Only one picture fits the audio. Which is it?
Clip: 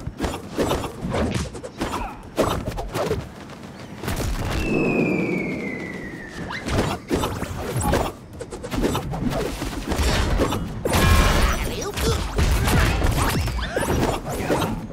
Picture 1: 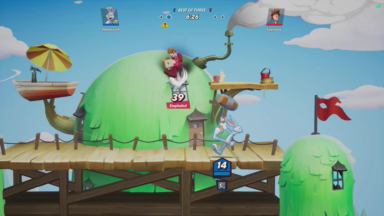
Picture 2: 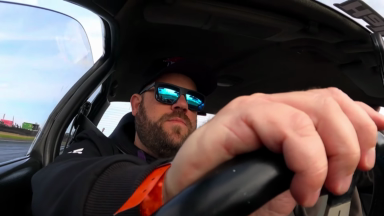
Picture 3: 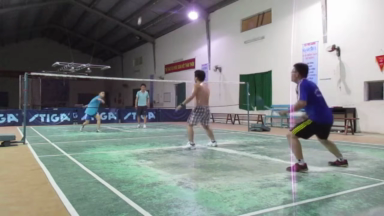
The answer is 1